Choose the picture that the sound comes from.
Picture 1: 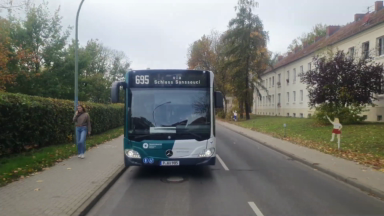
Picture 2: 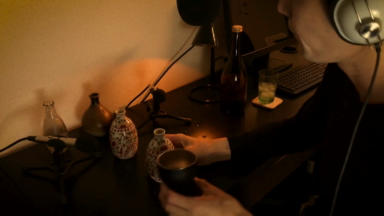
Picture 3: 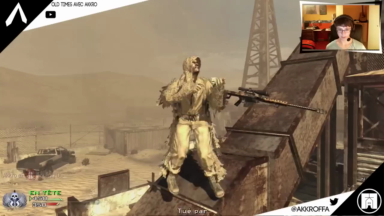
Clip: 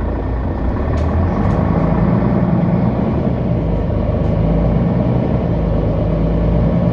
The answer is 1